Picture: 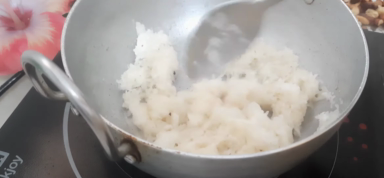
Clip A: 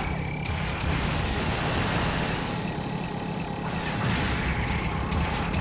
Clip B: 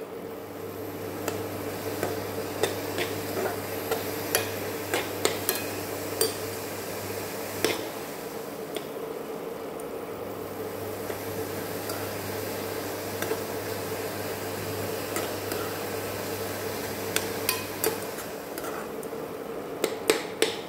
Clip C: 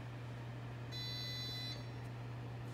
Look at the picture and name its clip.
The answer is B